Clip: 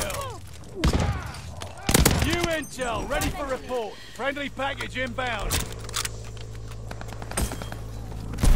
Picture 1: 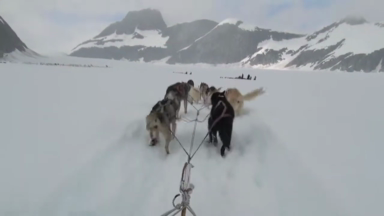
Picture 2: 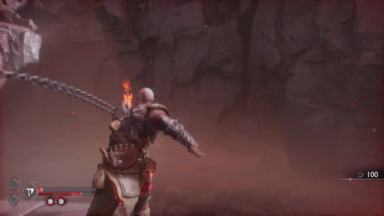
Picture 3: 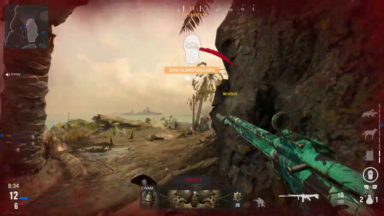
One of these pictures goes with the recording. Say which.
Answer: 3